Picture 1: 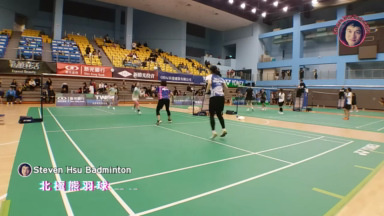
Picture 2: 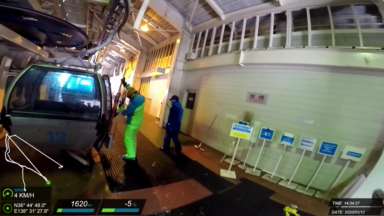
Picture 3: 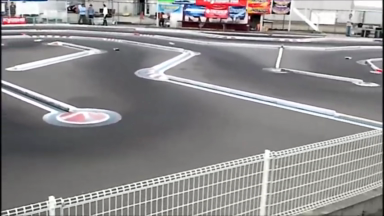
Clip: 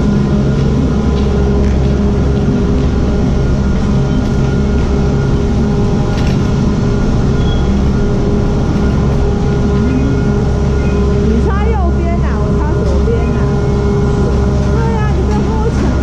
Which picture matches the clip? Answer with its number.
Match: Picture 2